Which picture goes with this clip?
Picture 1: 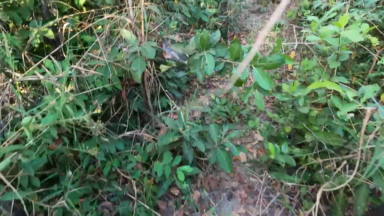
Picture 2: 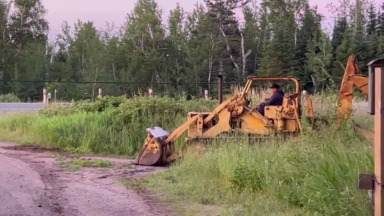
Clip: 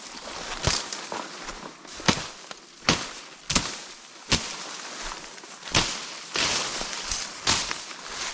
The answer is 1